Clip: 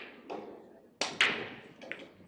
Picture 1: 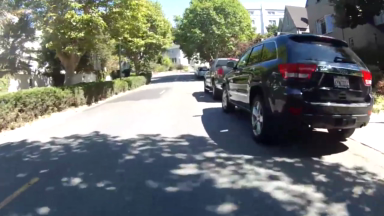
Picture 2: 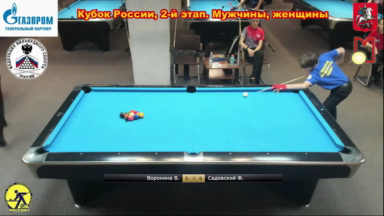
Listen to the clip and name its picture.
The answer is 2